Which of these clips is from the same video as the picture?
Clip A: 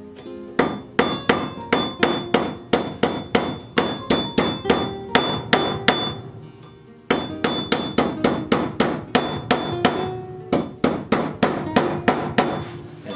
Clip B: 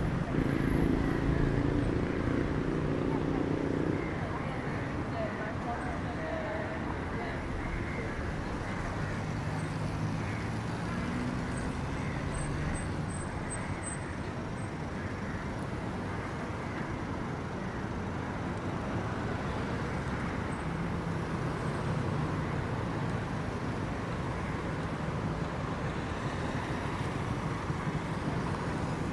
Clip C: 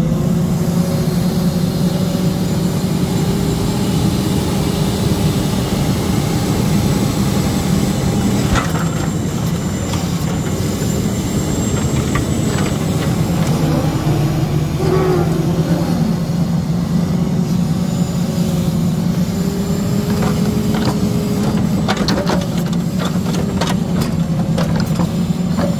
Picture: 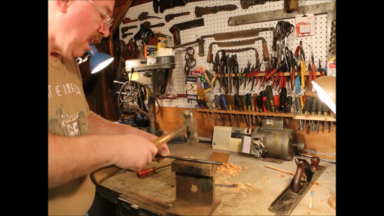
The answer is A